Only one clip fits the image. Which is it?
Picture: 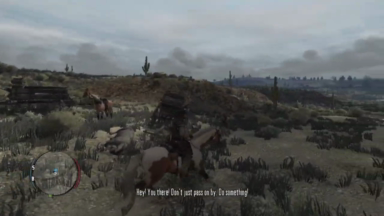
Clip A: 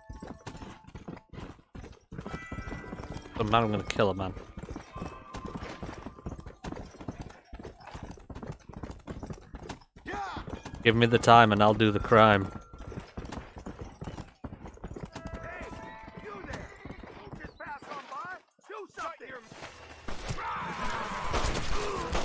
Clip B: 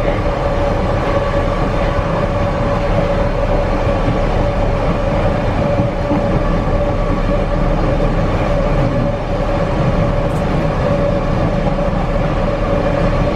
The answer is A